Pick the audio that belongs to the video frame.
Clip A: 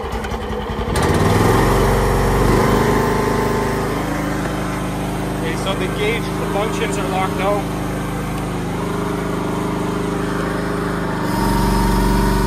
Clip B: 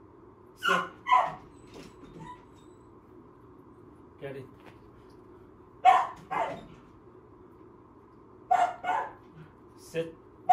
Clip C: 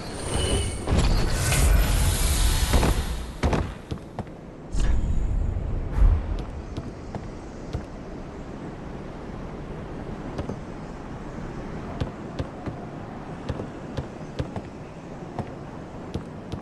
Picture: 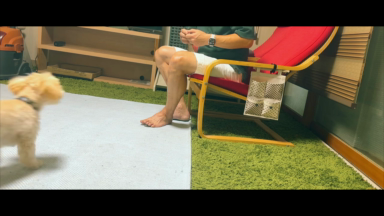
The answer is B